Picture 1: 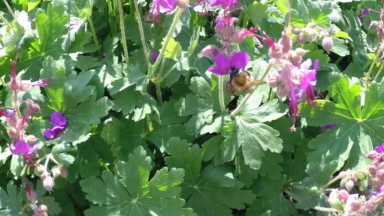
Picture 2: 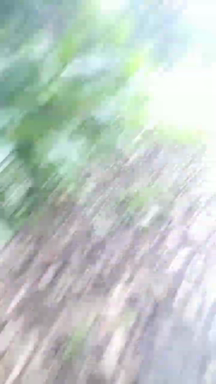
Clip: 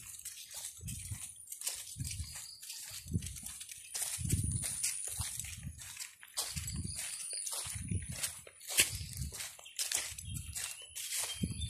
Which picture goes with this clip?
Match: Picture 2